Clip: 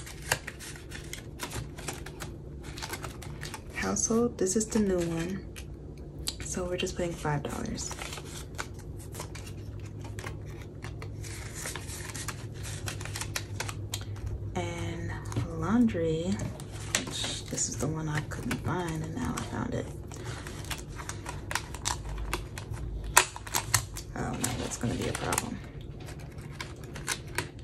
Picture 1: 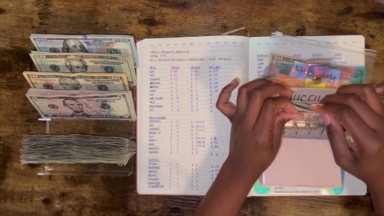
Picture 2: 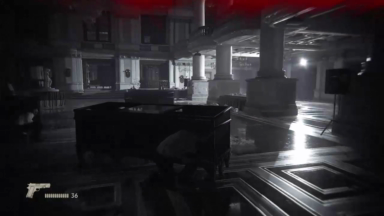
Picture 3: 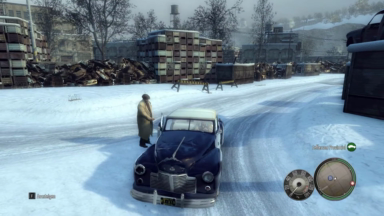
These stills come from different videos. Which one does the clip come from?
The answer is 1